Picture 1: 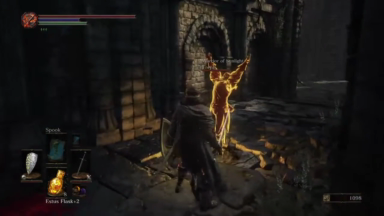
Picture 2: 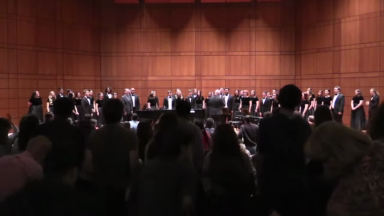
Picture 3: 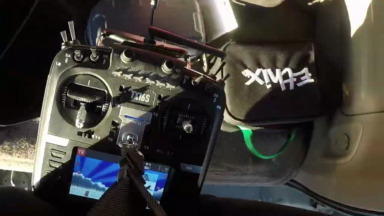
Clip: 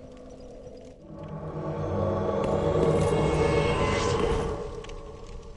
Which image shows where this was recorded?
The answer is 1